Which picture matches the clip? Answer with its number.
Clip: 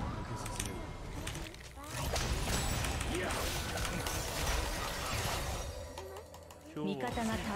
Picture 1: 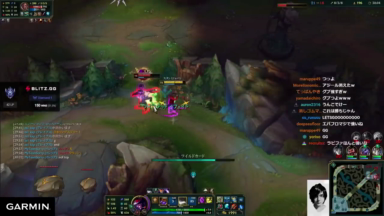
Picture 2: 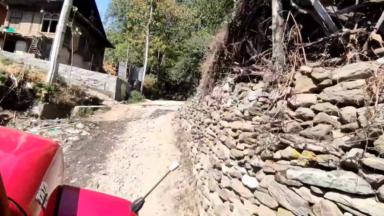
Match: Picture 1